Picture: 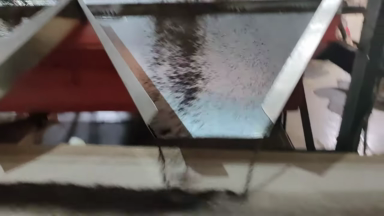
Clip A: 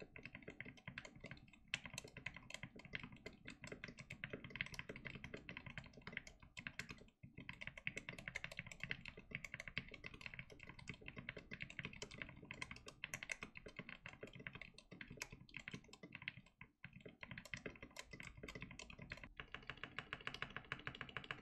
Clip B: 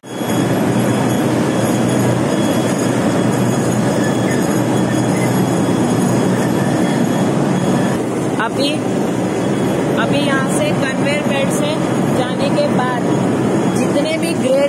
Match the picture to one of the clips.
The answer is B